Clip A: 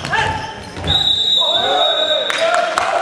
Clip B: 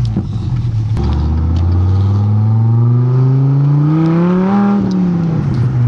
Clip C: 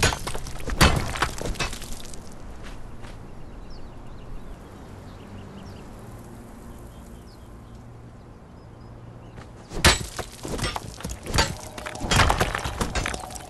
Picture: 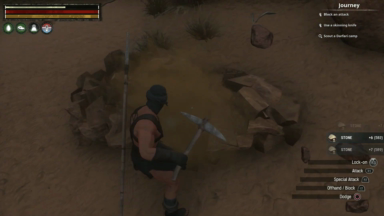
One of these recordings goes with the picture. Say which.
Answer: C